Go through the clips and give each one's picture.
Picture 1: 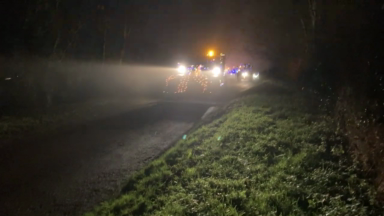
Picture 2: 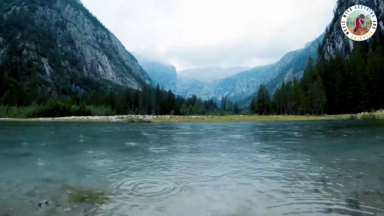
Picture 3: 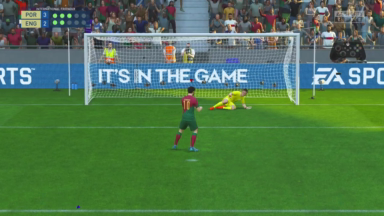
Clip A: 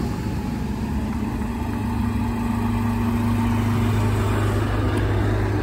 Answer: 1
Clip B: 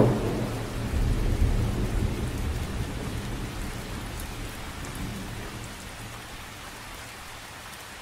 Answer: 2